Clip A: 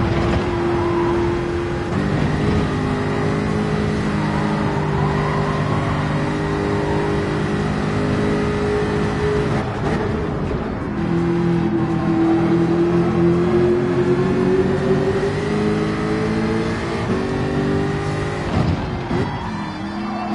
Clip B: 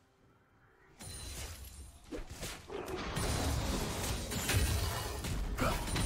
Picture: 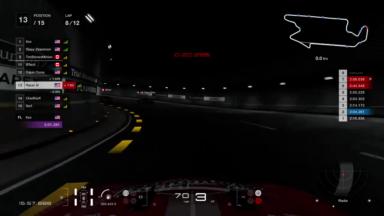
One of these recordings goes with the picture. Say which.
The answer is A